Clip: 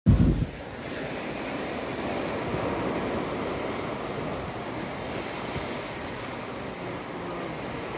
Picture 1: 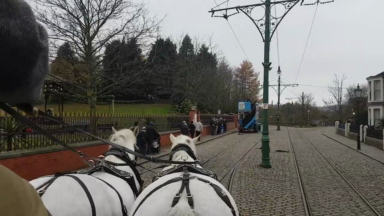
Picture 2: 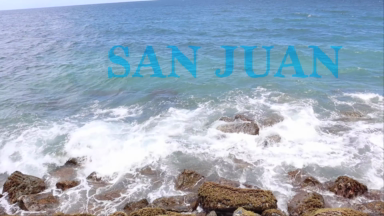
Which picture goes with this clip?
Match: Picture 2